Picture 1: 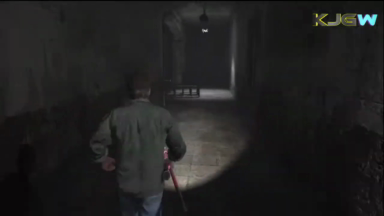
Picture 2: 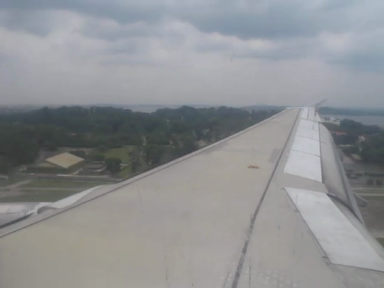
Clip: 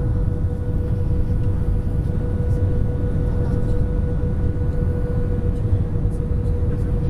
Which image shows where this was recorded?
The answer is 2